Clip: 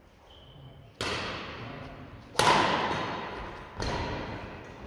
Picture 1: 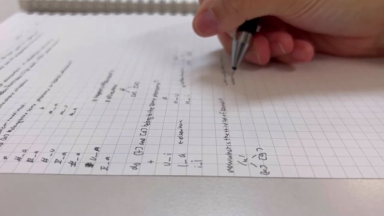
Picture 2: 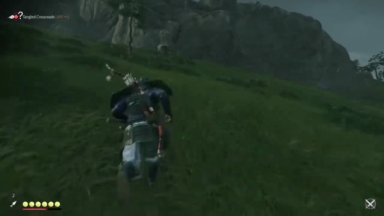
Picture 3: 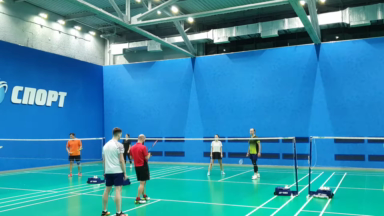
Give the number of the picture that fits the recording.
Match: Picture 3